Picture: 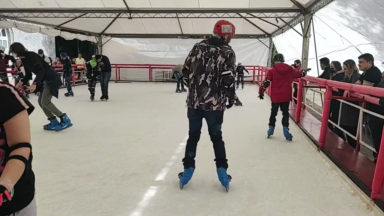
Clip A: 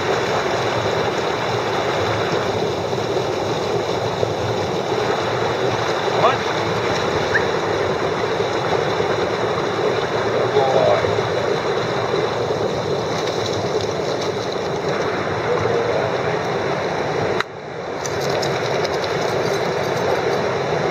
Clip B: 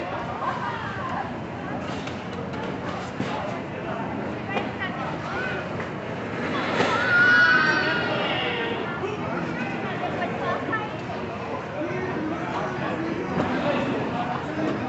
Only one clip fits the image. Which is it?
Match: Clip B